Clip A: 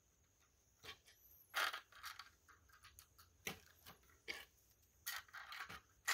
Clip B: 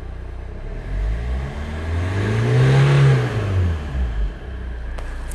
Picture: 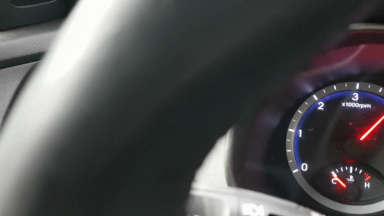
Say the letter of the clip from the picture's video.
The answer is B